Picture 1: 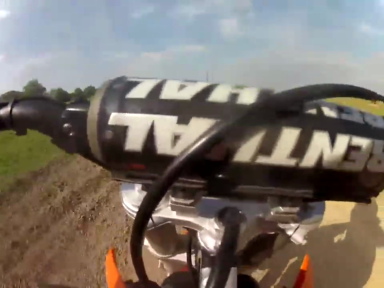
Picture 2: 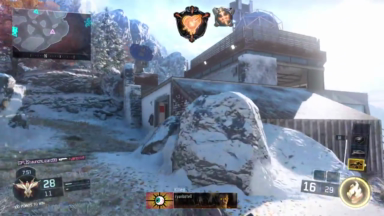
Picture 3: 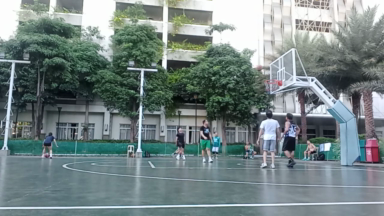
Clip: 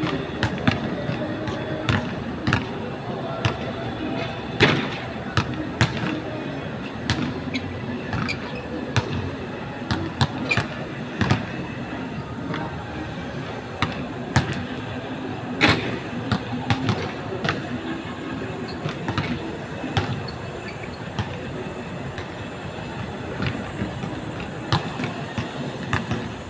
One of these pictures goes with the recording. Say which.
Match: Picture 3